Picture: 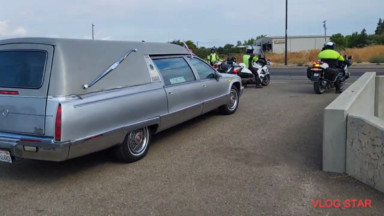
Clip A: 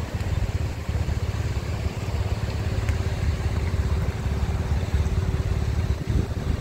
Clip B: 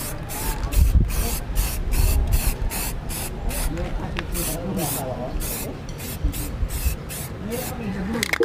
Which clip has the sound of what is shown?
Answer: A